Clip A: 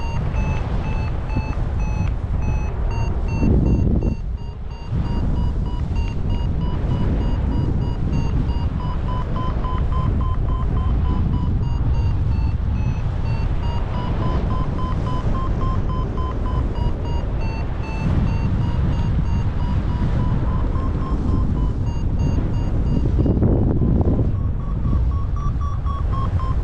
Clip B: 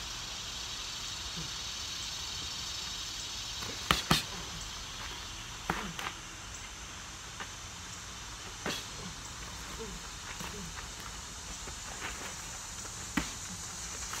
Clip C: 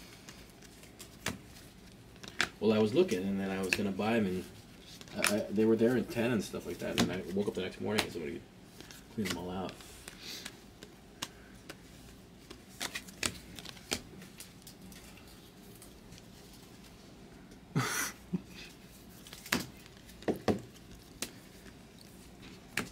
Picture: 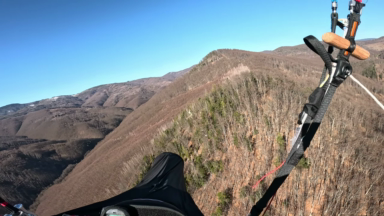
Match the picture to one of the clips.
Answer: A